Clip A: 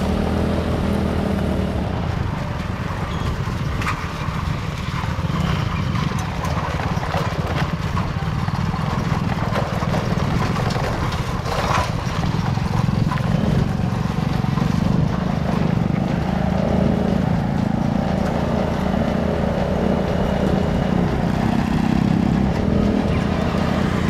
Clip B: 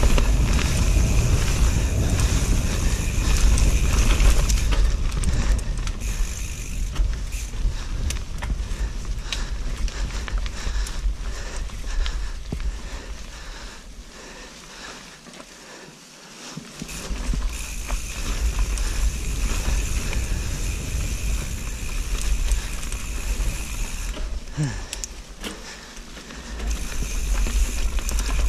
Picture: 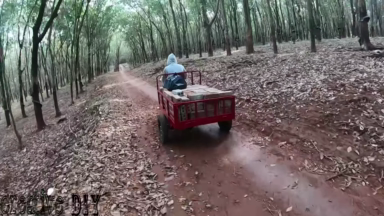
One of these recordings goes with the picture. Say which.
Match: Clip A